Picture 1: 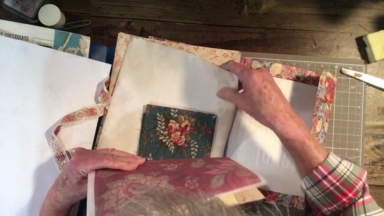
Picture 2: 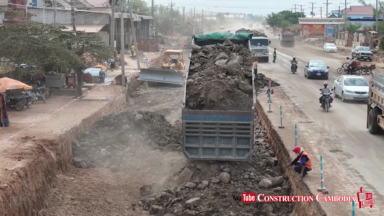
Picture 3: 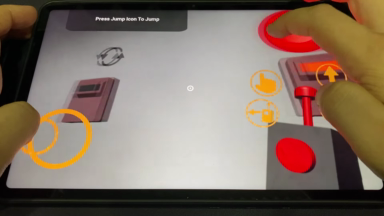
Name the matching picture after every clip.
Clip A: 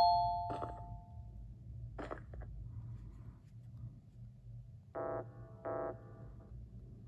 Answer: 3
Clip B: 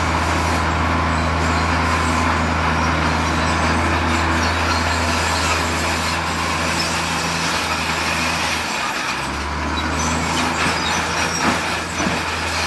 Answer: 2